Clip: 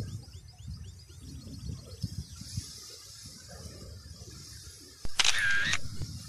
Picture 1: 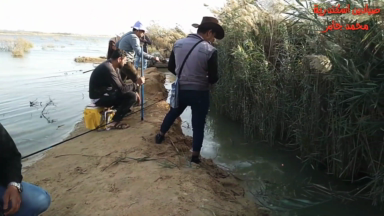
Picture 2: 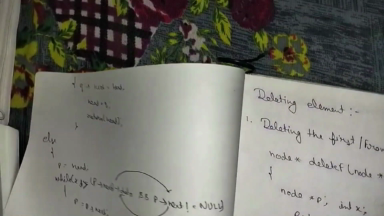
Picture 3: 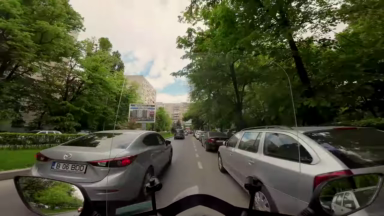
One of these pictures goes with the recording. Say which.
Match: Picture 1